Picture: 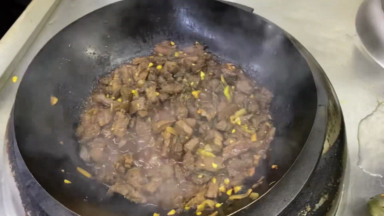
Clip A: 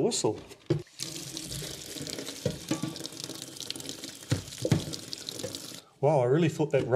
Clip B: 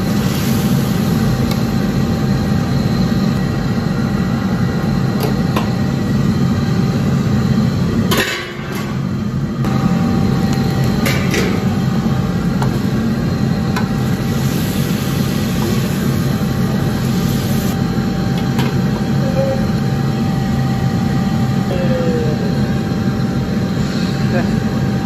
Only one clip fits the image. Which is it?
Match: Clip B